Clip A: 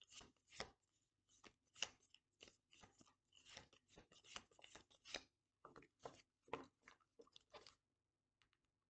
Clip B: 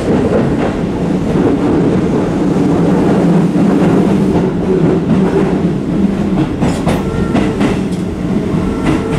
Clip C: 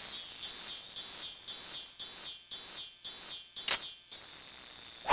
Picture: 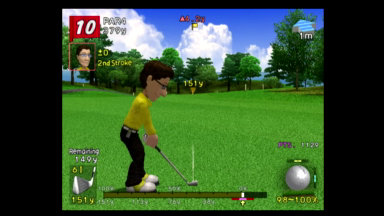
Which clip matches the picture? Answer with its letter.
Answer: C